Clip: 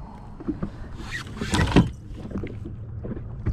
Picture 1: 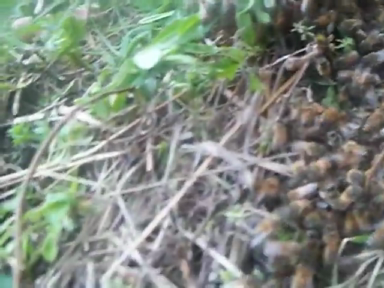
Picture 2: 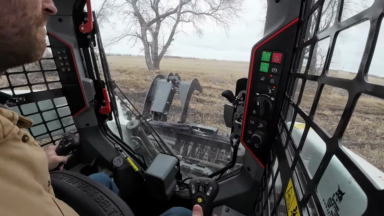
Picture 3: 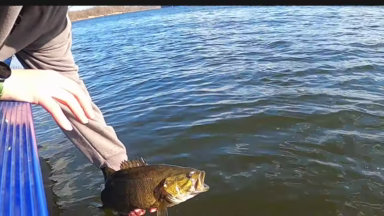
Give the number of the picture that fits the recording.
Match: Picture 3